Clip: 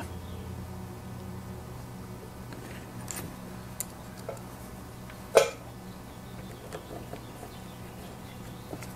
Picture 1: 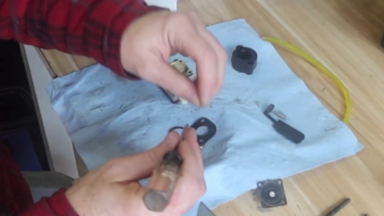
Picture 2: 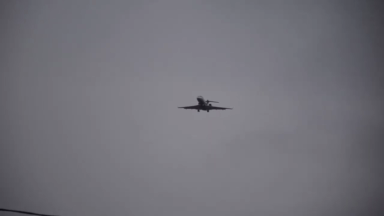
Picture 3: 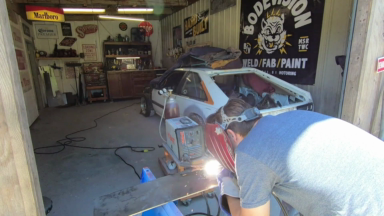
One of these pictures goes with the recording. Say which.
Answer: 1